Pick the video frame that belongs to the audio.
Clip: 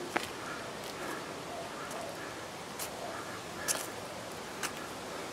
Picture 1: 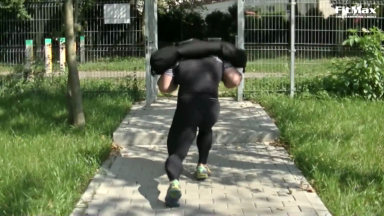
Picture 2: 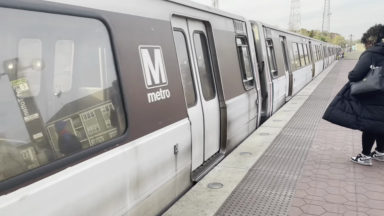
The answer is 1